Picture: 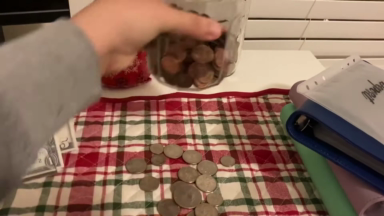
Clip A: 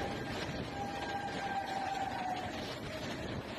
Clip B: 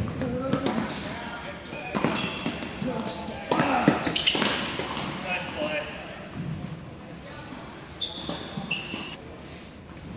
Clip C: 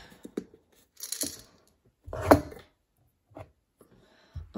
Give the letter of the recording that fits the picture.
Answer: C